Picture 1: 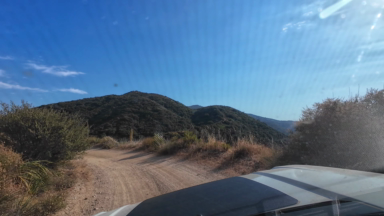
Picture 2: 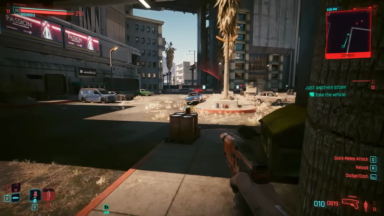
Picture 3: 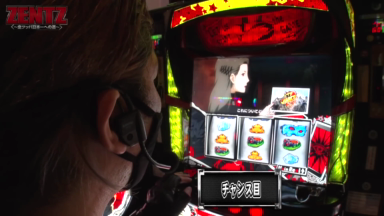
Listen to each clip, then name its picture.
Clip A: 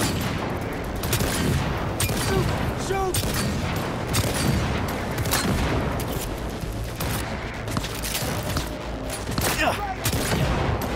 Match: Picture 2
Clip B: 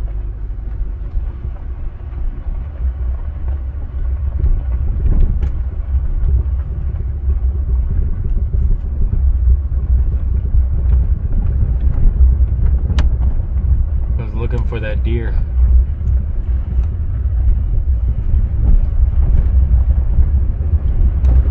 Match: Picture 1